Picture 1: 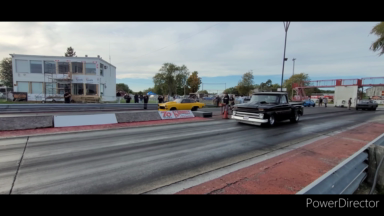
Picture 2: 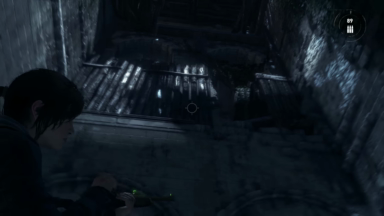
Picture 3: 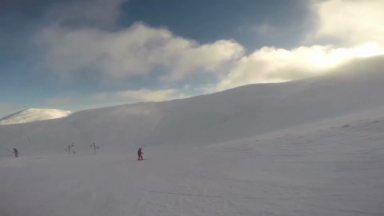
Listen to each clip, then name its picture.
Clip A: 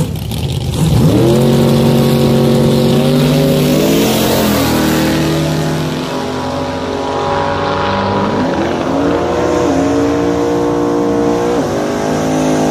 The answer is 1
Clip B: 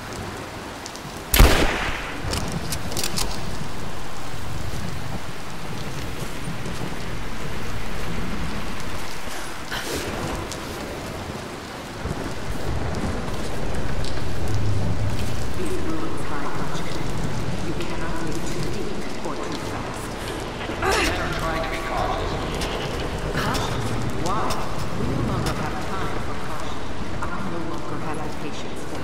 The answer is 2